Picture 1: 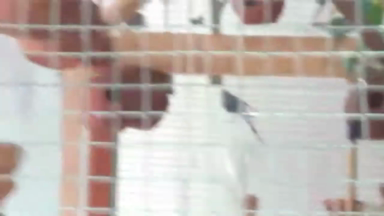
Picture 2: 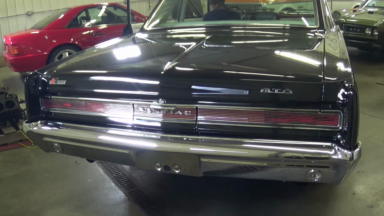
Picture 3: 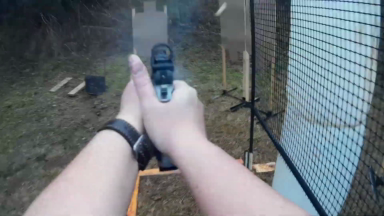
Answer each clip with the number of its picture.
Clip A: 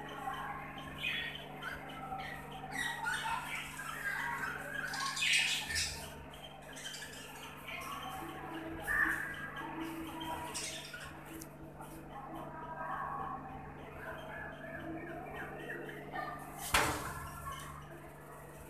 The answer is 1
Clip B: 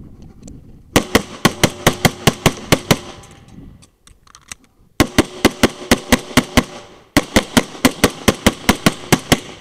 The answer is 3